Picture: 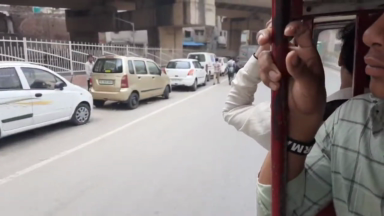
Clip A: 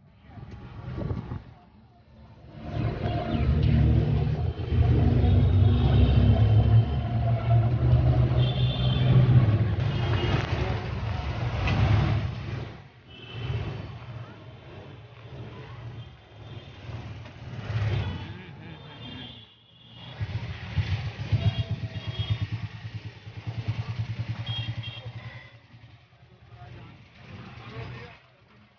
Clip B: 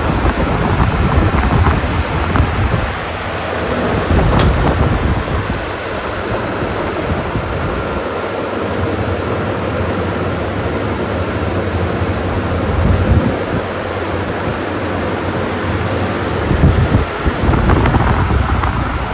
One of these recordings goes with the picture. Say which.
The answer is A